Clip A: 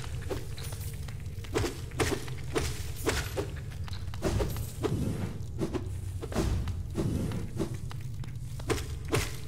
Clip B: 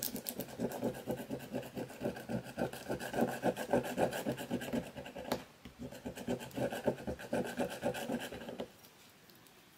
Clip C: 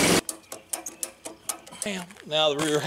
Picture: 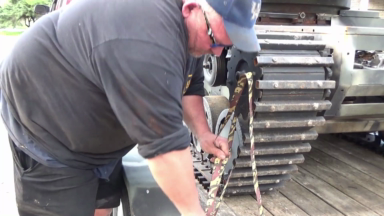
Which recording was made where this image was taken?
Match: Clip C